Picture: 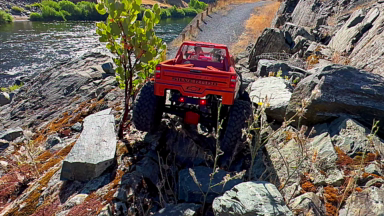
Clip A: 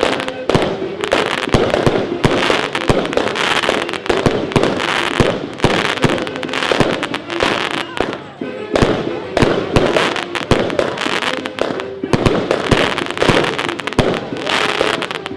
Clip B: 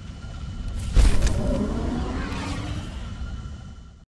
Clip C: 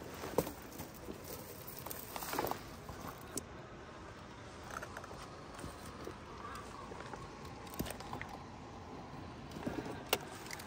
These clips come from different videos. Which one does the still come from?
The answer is C